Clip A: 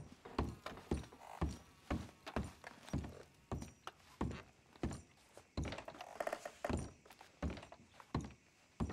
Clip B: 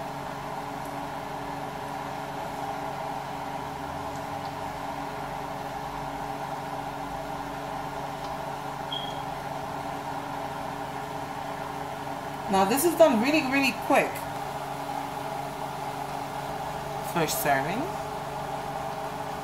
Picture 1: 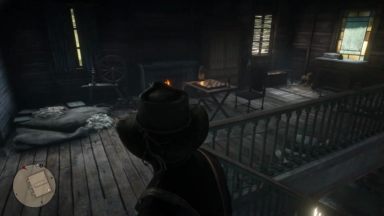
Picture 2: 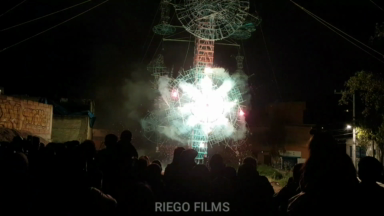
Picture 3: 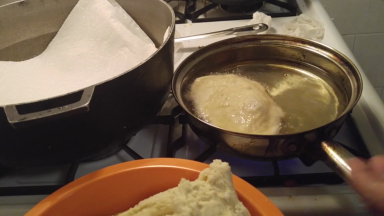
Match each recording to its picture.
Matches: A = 1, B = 3